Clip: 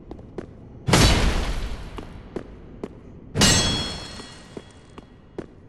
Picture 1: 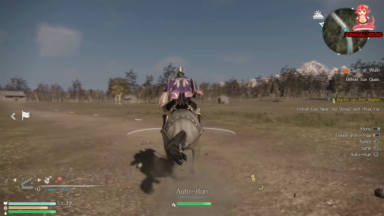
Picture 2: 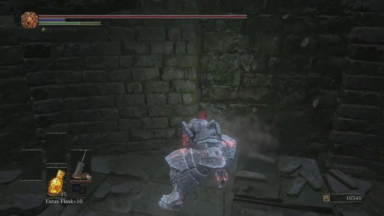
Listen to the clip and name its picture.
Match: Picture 2